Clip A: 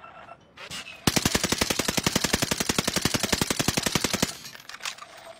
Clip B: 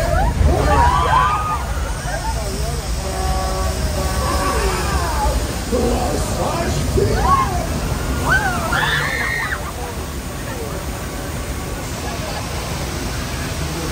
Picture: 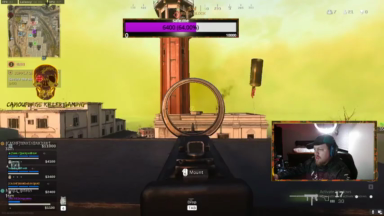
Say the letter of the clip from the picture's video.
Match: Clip A